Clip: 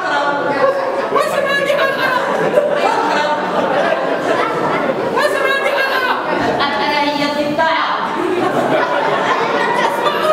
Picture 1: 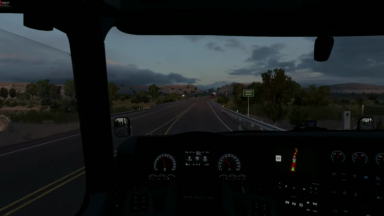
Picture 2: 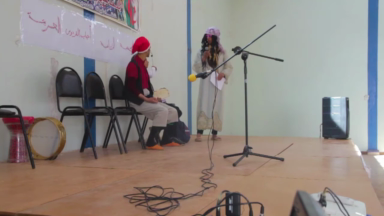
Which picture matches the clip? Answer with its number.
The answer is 2